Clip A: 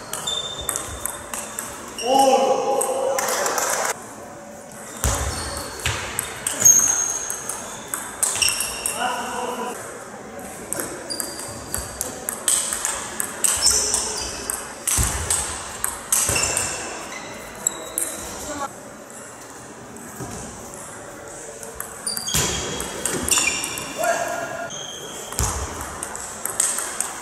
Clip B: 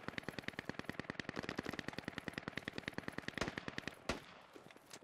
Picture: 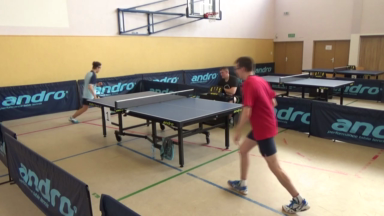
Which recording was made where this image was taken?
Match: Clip A